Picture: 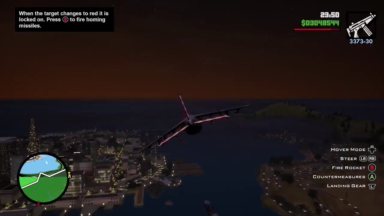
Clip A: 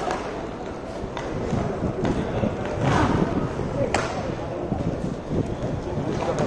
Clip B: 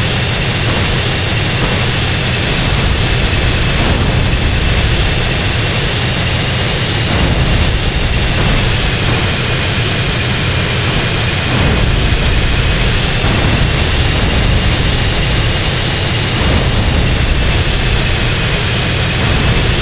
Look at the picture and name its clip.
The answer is B